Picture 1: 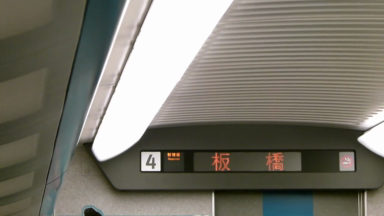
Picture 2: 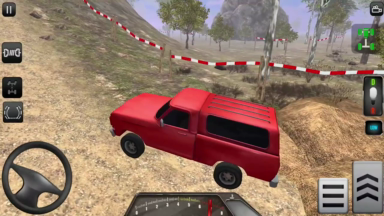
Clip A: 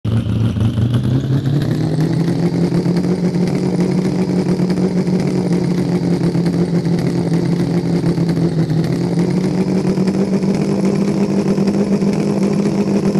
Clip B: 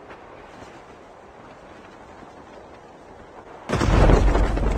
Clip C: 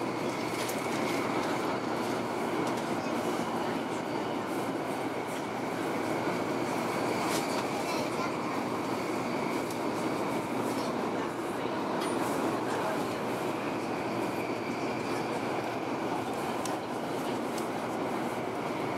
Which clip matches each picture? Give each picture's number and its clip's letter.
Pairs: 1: C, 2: A